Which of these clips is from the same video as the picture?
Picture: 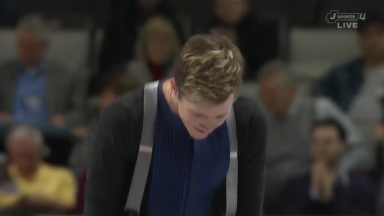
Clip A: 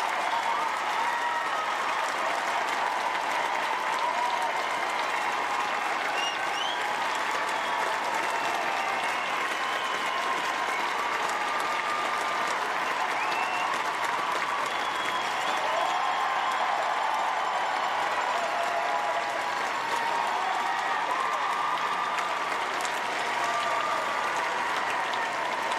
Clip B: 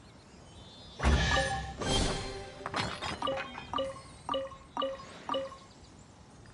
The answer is A